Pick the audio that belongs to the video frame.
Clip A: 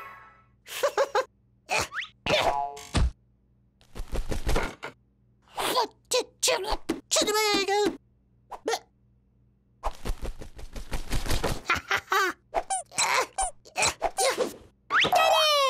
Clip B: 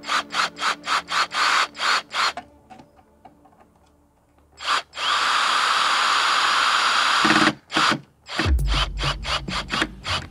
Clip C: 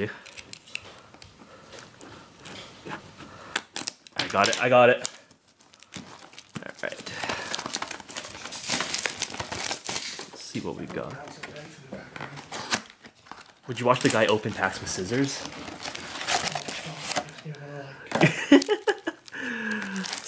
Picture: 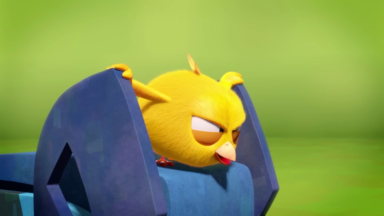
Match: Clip A